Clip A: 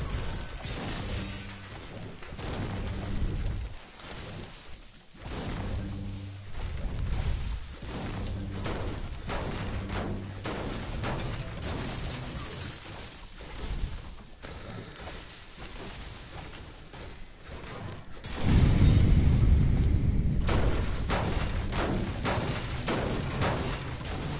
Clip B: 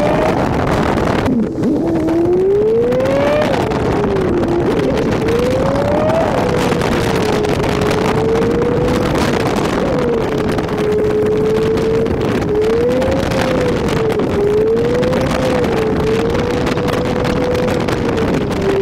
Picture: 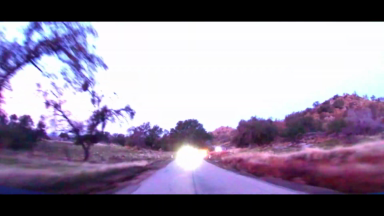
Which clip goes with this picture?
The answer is B